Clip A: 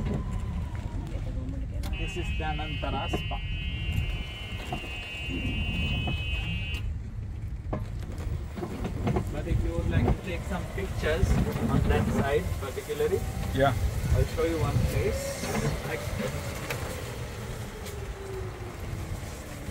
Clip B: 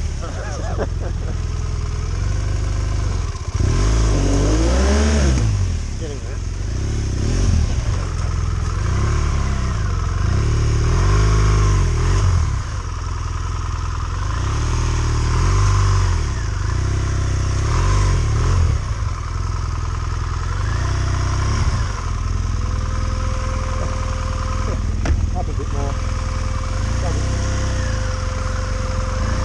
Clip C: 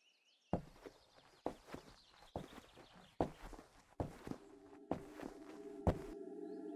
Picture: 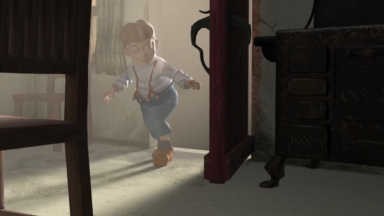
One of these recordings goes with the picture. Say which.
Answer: C